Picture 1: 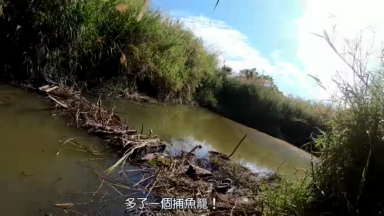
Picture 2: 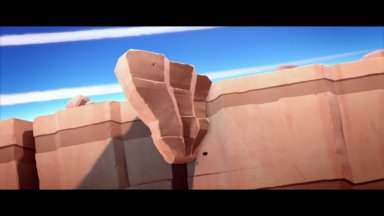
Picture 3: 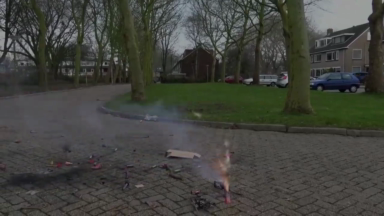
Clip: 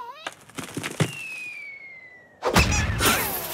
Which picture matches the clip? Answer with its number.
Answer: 2